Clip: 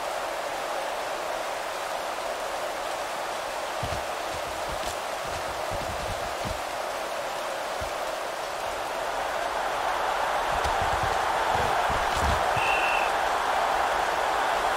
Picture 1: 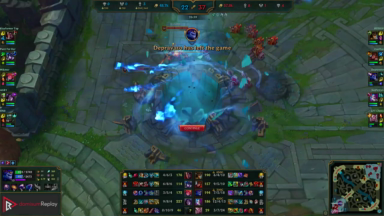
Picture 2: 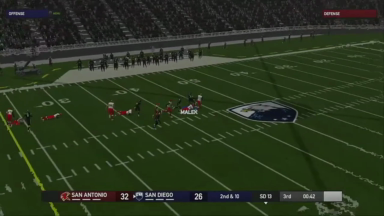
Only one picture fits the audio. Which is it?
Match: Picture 2